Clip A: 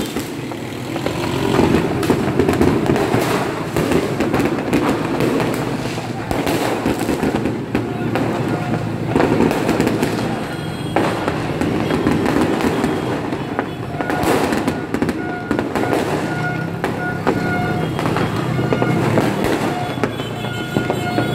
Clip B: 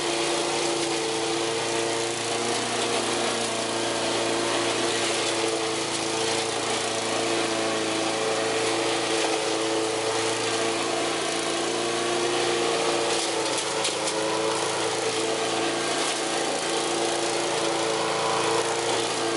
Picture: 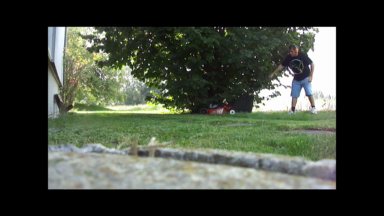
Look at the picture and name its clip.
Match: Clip B